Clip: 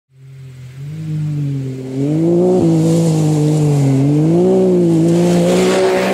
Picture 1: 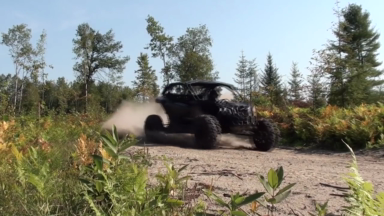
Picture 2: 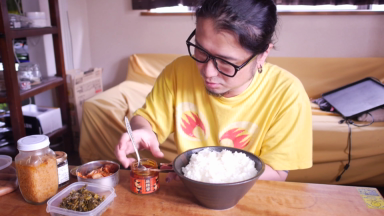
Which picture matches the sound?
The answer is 1